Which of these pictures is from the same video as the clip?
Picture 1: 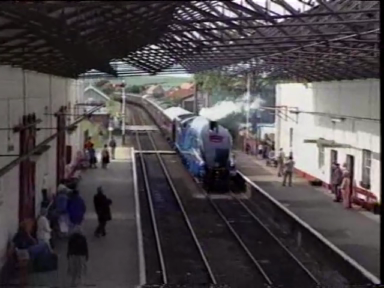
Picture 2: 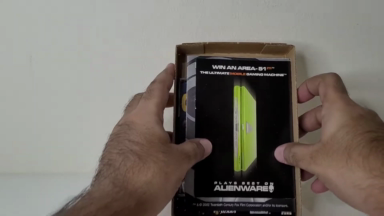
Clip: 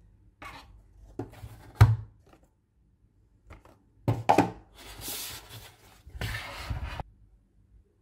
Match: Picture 2